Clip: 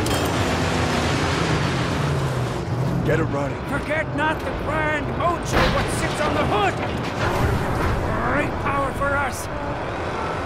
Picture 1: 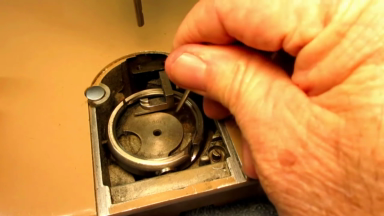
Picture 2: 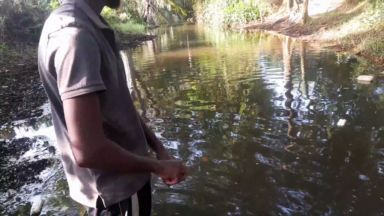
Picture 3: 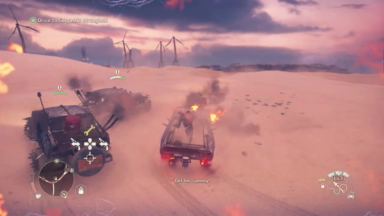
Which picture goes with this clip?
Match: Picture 3